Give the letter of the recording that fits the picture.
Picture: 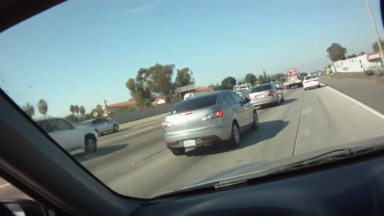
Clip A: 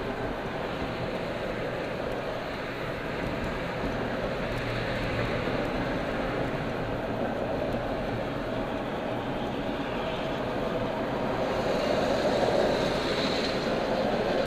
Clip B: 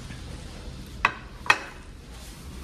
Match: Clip A